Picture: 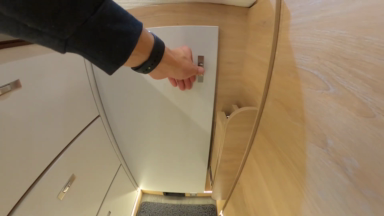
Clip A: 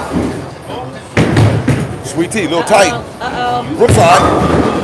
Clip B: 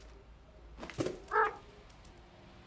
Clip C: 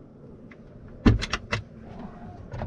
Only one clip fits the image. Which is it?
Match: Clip C